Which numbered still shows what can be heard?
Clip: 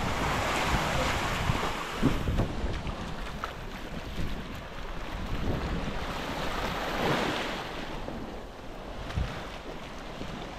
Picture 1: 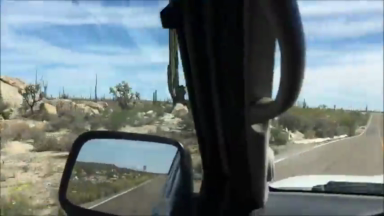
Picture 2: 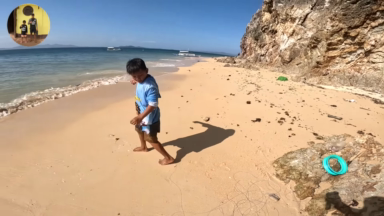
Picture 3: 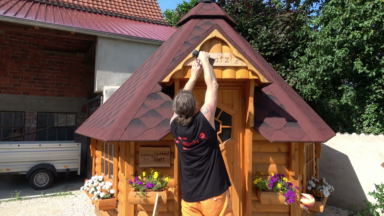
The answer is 2